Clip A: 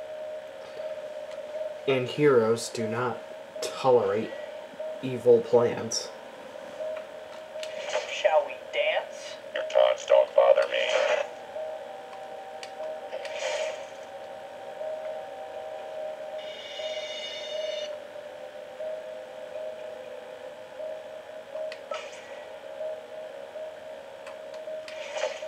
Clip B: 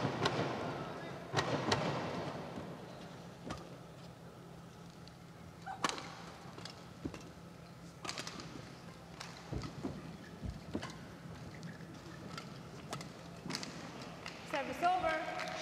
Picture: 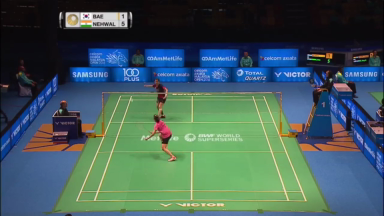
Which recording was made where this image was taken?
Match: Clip B